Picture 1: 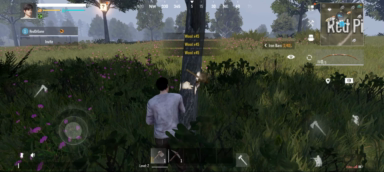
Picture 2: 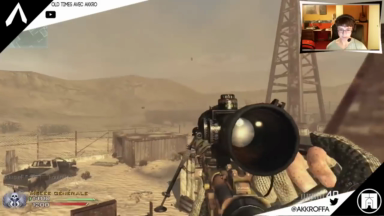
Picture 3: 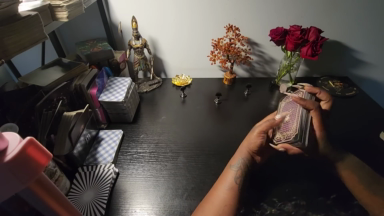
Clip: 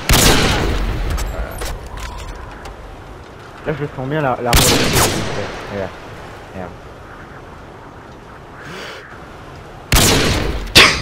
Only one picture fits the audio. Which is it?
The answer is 2